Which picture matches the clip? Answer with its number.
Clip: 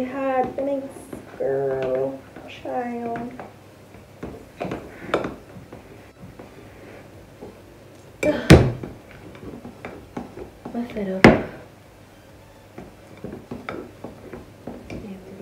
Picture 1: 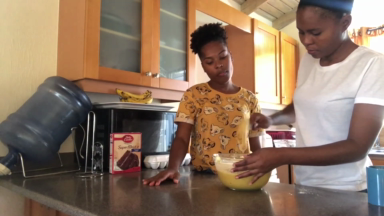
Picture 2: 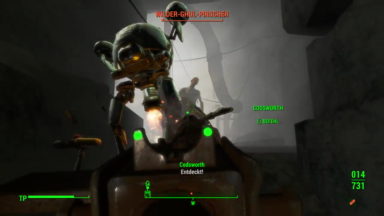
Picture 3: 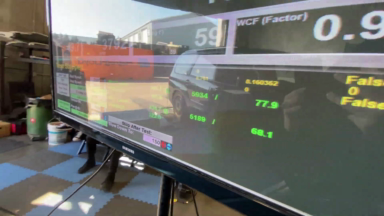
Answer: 1